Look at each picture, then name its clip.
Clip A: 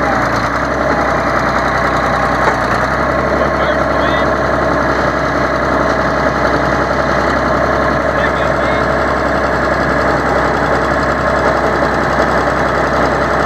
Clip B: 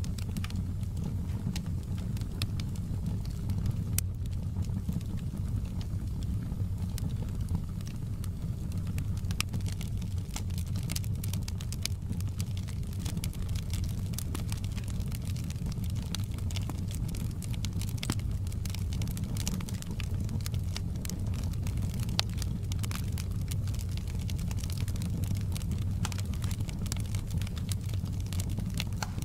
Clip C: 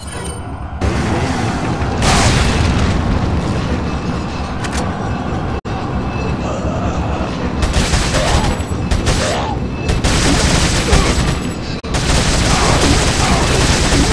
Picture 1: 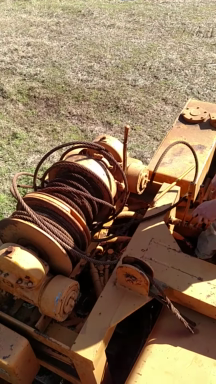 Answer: A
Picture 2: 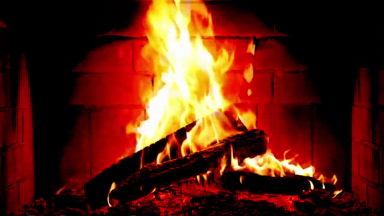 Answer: B